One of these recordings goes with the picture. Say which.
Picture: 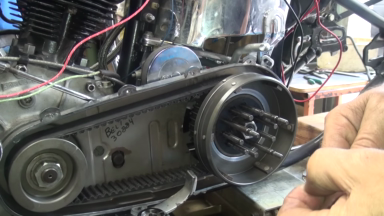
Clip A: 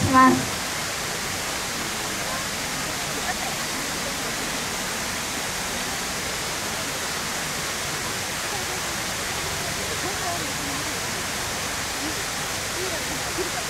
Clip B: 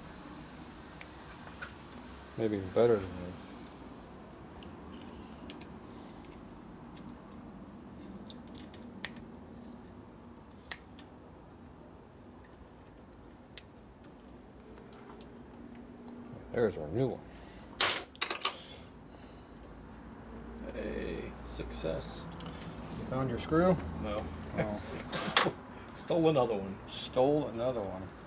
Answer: B